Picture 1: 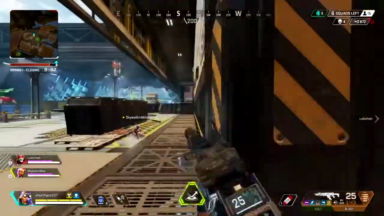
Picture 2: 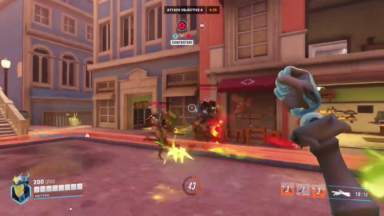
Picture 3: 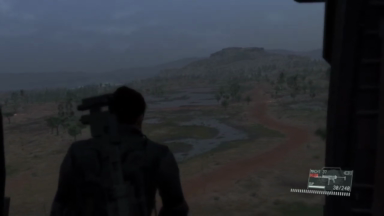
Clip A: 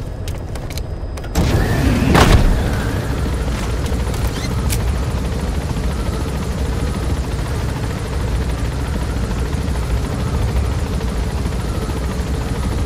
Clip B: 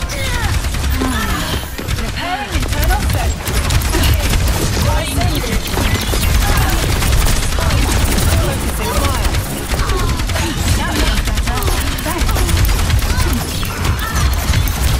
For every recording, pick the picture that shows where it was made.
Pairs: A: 3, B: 2